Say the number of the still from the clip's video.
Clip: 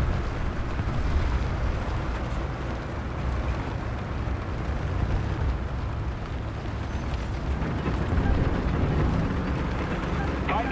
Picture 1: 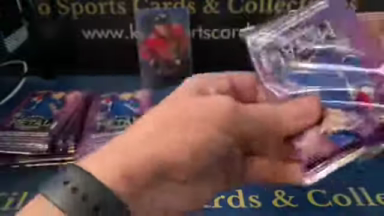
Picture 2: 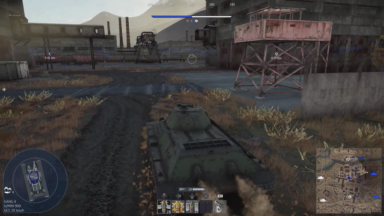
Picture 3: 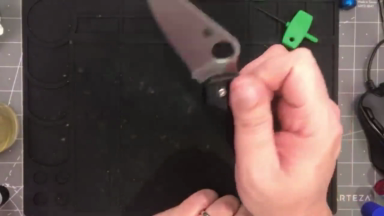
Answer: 2